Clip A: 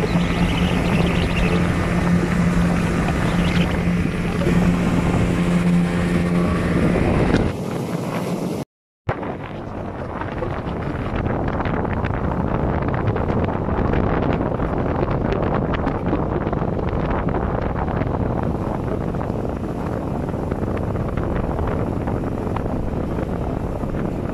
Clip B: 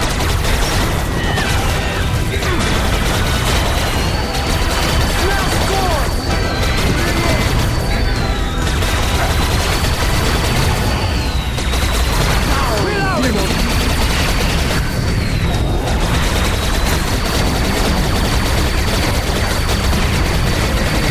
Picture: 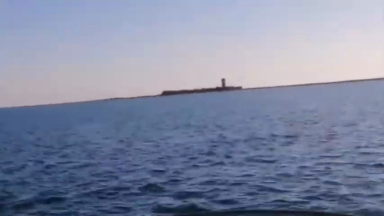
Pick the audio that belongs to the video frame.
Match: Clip A